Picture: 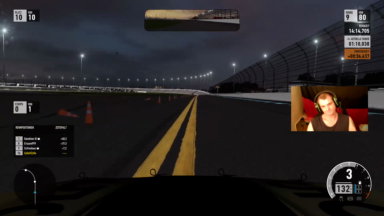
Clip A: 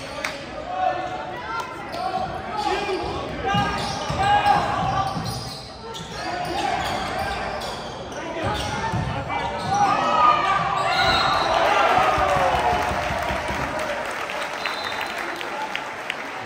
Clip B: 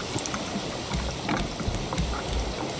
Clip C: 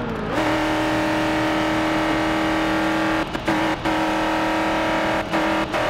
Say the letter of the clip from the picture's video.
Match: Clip C